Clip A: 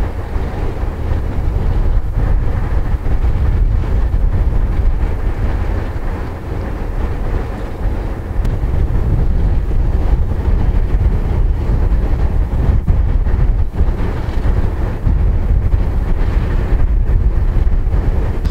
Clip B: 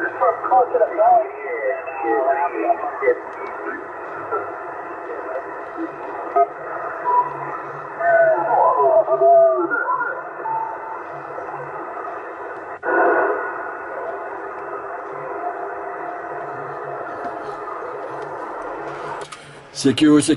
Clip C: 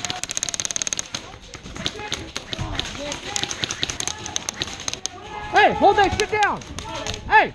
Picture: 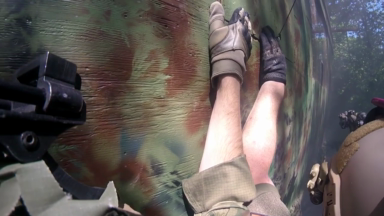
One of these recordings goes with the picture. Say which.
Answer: C